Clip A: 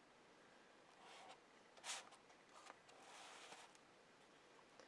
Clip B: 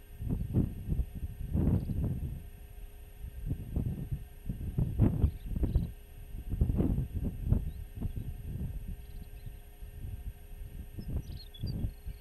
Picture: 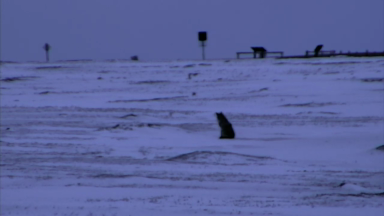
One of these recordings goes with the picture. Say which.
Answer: B